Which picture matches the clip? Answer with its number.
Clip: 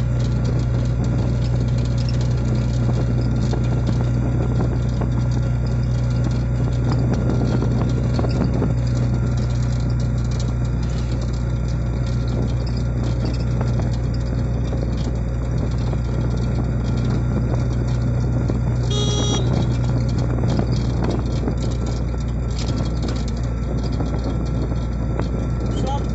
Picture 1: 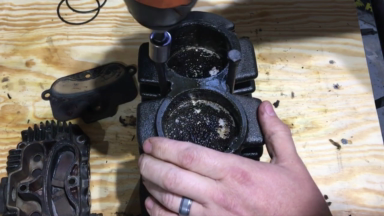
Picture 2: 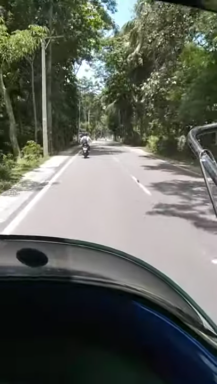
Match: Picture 2